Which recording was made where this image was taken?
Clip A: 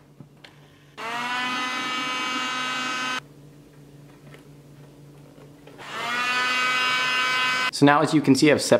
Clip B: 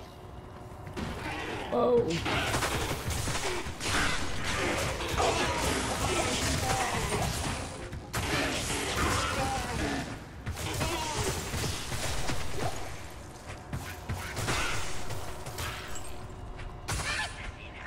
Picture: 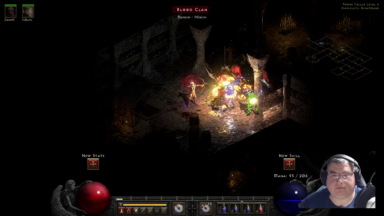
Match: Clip B